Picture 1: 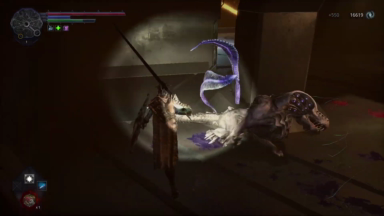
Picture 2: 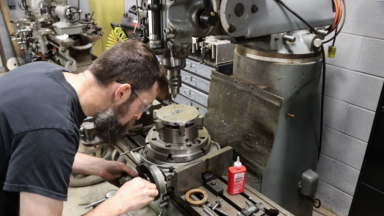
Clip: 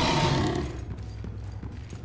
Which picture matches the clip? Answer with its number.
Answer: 1